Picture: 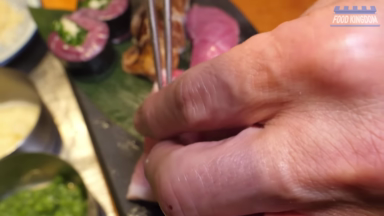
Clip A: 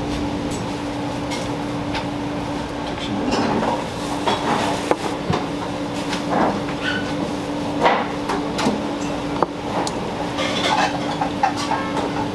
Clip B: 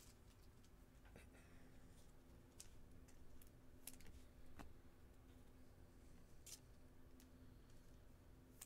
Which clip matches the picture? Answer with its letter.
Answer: A